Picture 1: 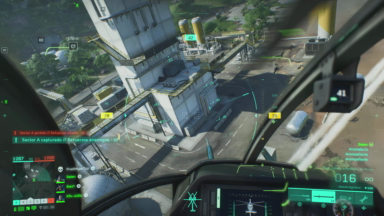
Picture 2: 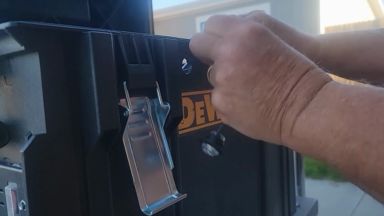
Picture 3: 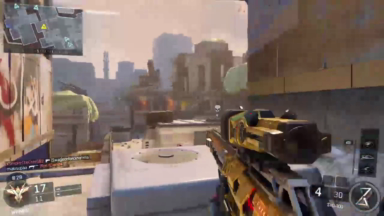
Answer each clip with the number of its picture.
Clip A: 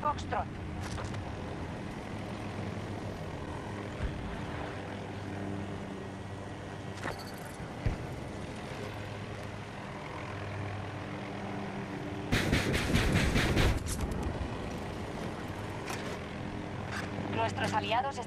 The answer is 1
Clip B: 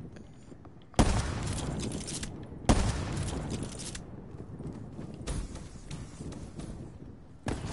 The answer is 3